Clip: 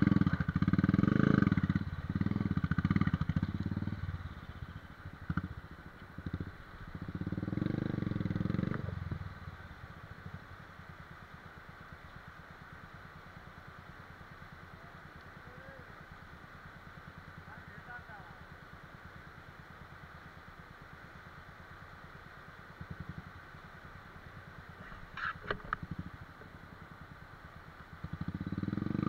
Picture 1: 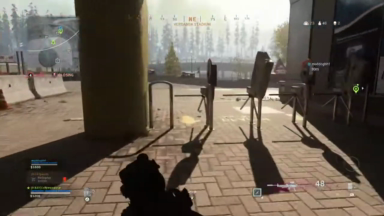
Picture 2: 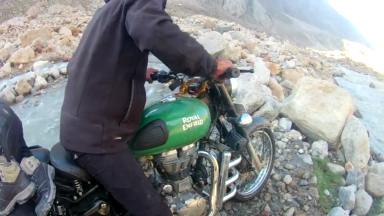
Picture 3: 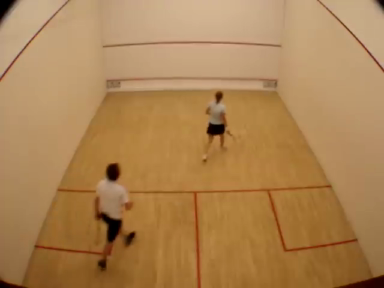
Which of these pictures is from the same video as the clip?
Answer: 2